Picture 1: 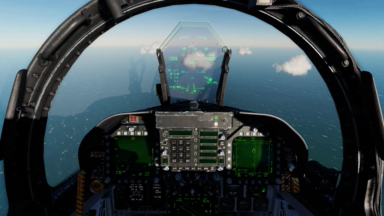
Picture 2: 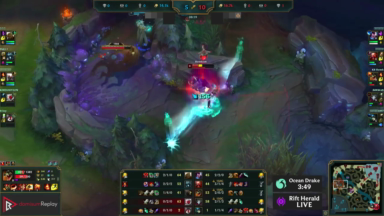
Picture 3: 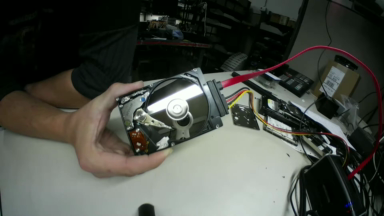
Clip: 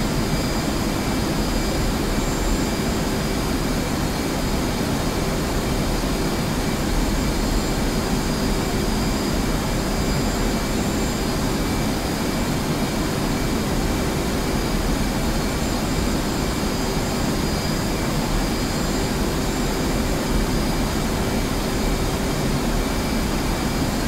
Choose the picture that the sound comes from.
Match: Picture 1